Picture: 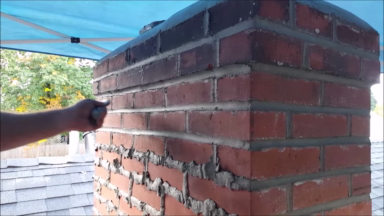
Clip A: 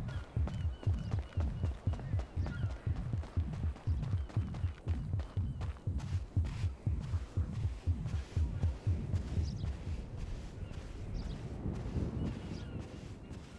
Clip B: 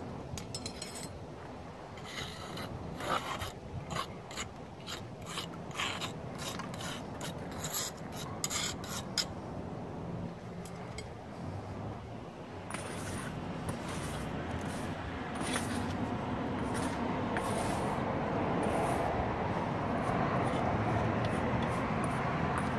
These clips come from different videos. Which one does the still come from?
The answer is B